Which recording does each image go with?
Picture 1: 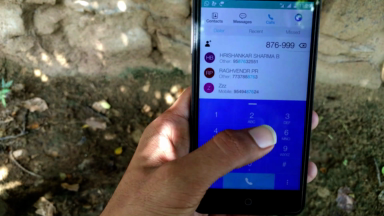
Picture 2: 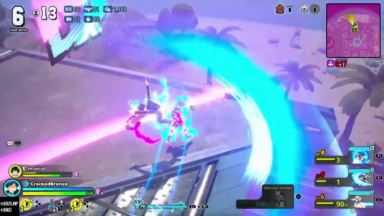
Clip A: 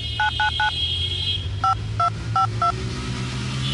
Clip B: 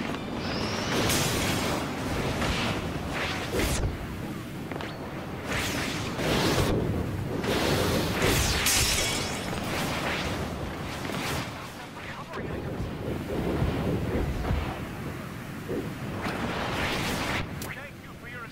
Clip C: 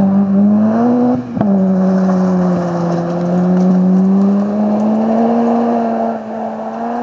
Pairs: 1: A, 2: B